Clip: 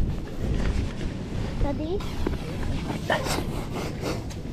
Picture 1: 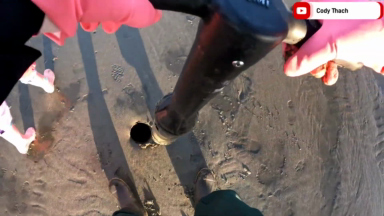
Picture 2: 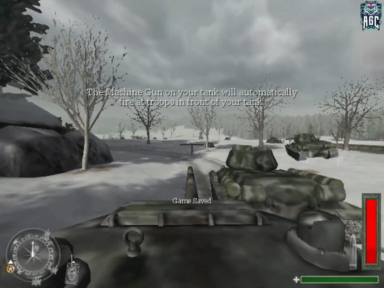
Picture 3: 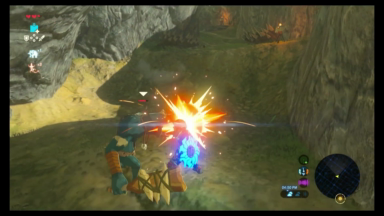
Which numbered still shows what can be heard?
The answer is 1